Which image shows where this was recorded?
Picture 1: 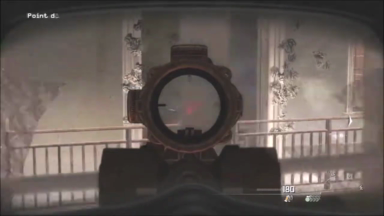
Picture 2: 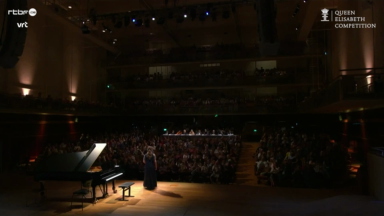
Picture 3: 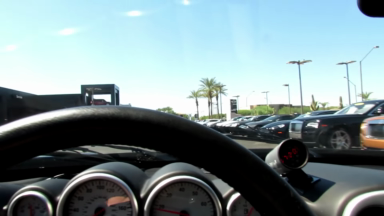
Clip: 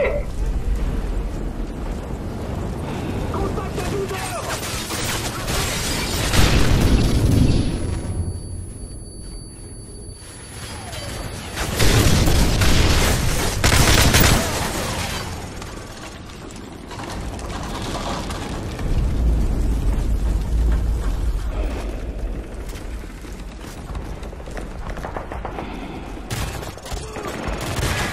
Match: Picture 1